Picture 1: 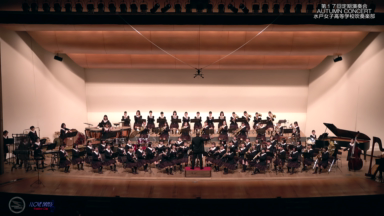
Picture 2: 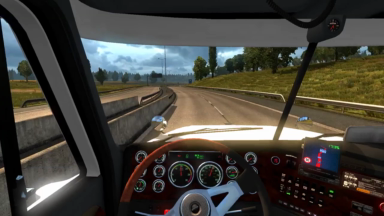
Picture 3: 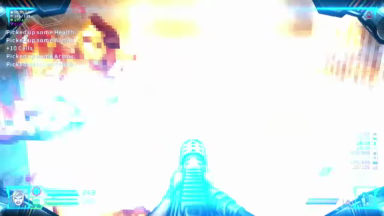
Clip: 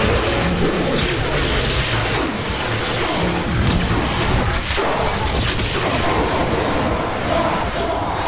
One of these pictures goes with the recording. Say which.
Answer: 3